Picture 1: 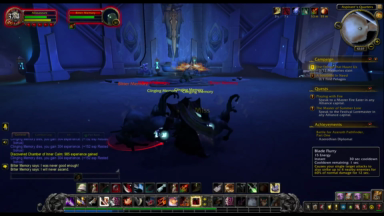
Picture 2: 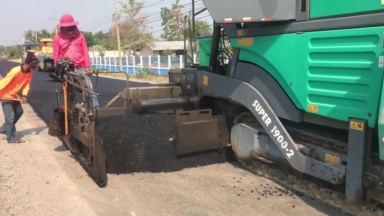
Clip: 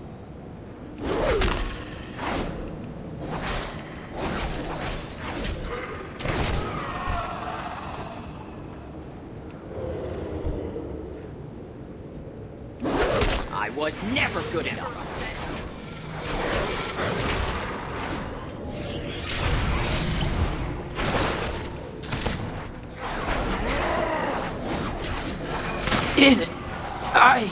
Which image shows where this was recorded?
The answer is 1